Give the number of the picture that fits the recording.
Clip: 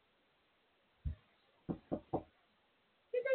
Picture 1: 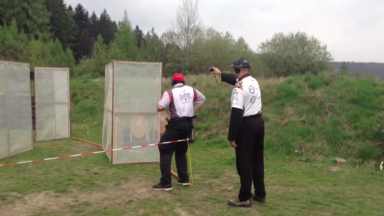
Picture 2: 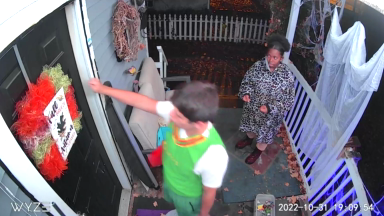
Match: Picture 2